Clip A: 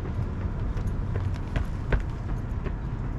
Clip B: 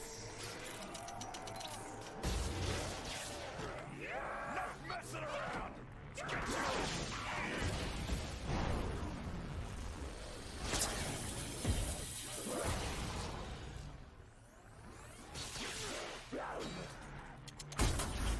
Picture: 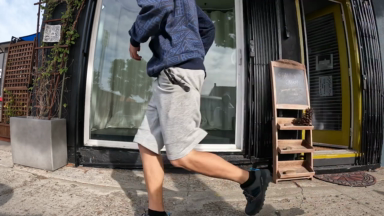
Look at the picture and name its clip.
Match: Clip A